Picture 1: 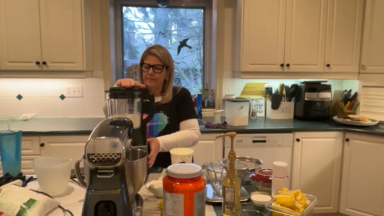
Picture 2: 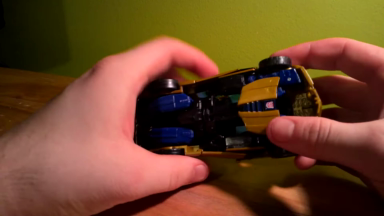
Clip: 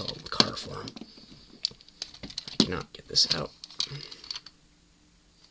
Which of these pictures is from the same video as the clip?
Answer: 2